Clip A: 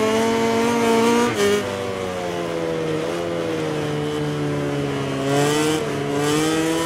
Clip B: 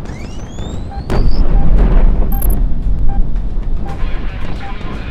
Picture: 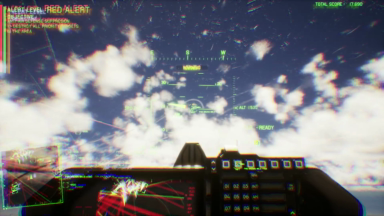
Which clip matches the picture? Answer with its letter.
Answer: B